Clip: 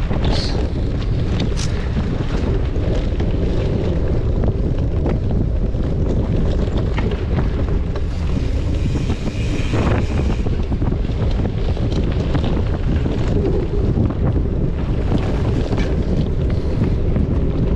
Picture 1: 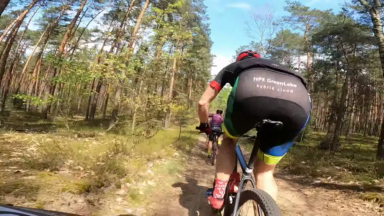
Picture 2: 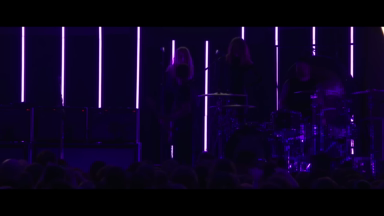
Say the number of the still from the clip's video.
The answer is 1